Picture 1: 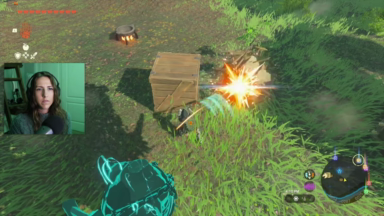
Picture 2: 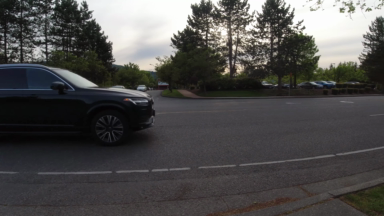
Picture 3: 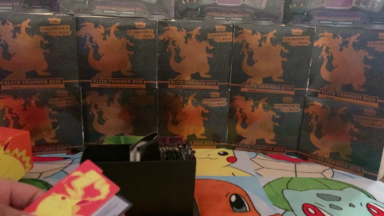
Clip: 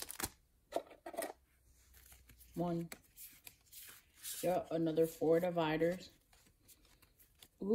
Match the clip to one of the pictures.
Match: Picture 3